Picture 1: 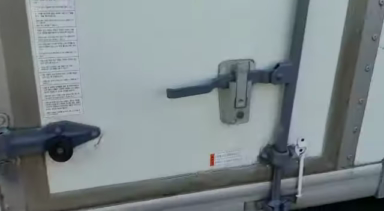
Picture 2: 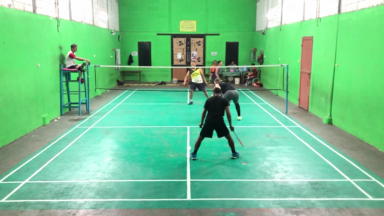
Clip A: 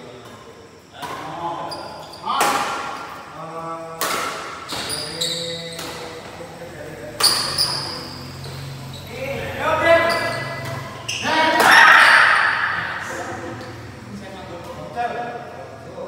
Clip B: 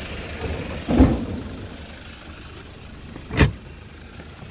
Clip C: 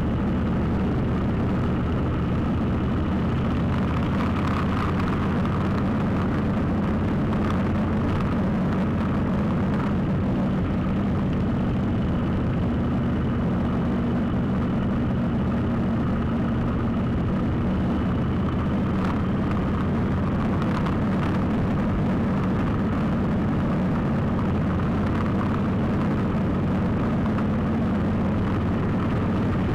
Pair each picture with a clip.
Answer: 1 B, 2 A